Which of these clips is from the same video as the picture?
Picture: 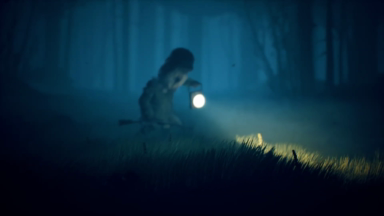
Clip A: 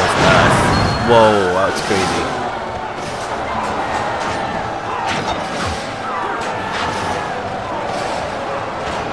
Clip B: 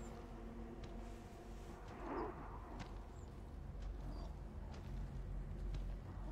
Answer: B